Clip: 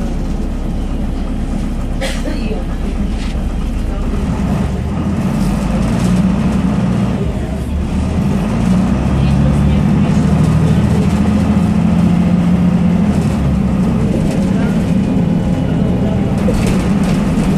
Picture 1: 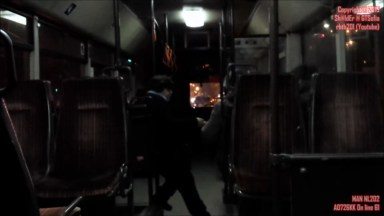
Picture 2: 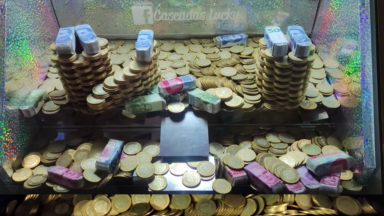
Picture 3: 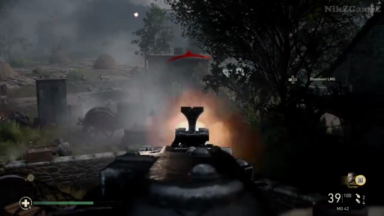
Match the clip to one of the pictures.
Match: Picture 1